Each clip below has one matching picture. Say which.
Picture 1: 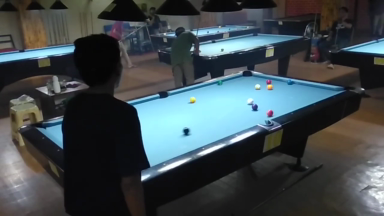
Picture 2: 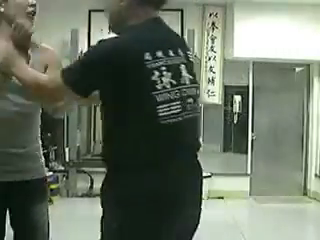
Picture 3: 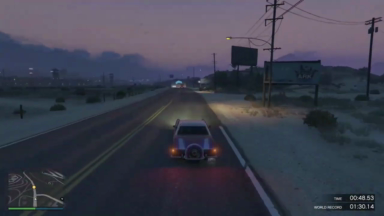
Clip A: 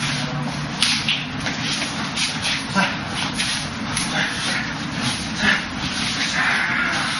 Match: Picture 2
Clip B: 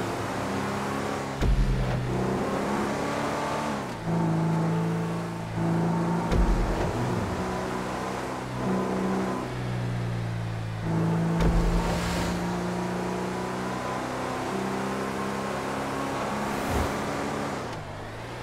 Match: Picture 3